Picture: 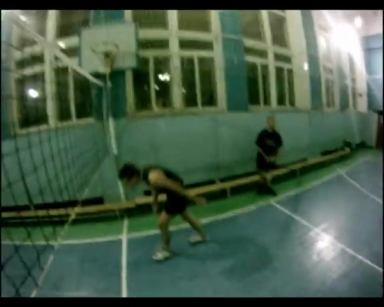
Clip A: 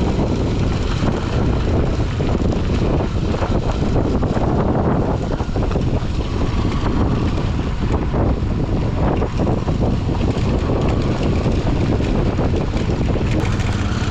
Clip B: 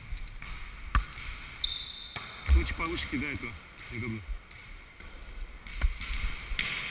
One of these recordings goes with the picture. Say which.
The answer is B